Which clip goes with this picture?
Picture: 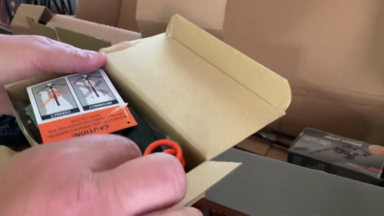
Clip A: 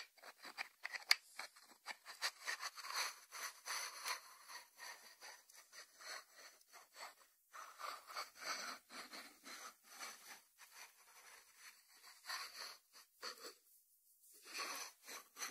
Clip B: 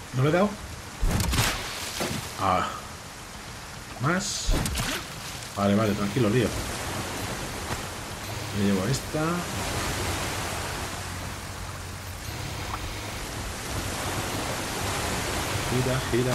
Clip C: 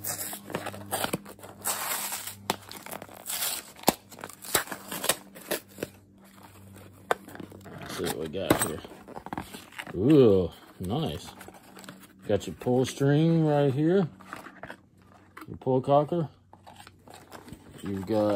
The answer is C